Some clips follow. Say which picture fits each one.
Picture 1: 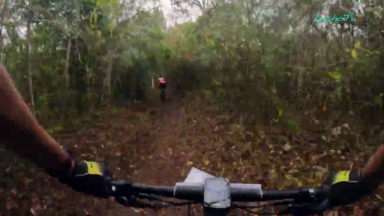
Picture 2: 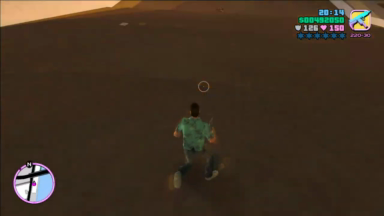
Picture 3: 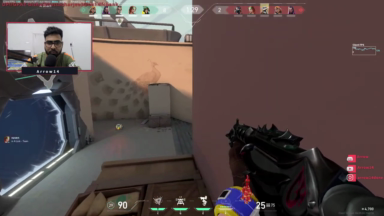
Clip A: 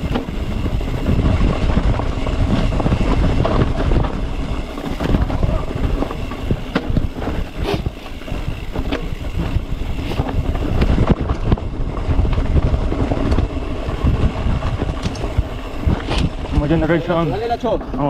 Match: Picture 1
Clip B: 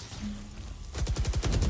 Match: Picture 3